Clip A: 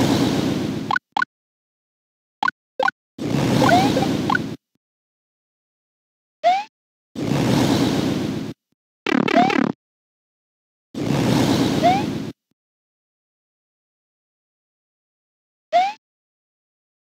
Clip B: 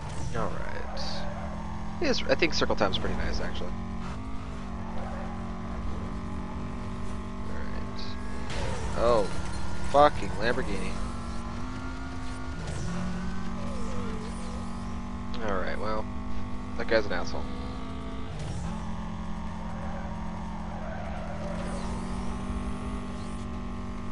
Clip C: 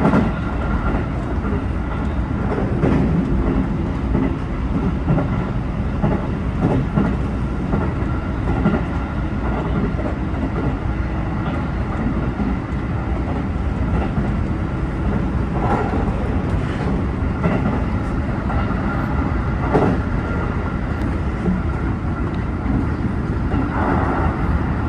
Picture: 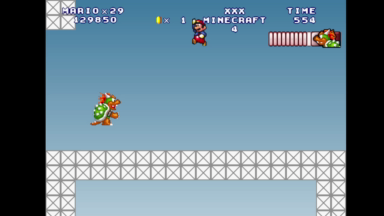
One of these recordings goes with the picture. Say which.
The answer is A